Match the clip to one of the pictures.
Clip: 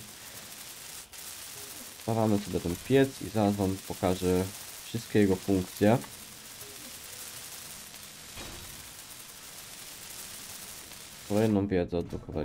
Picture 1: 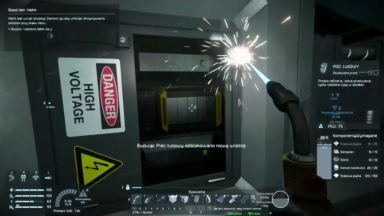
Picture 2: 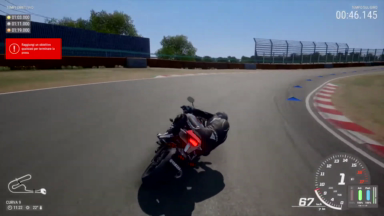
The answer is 1